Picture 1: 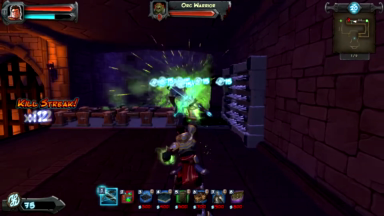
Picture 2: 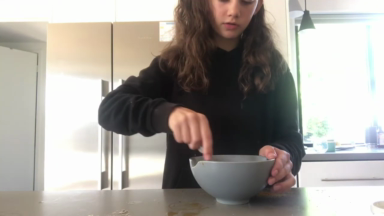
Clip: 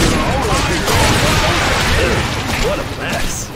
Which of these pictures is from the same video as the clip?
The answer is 1